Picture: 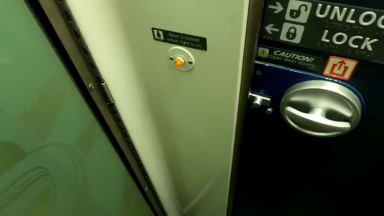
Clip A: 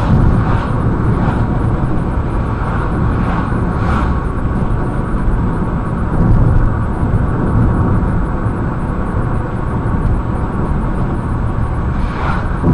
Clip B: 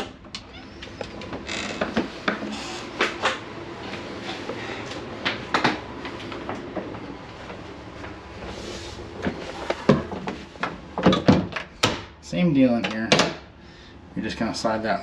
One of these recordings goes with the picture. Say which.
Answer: B